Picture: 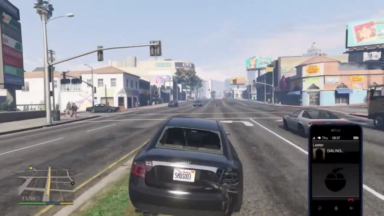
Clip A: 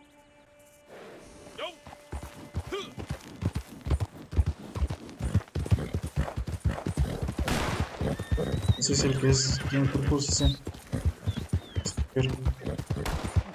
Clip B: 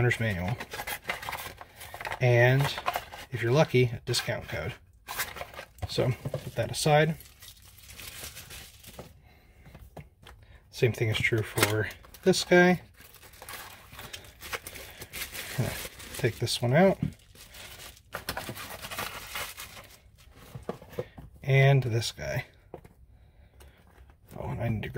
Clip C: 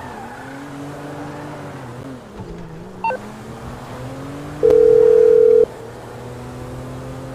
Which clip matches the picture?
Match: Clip C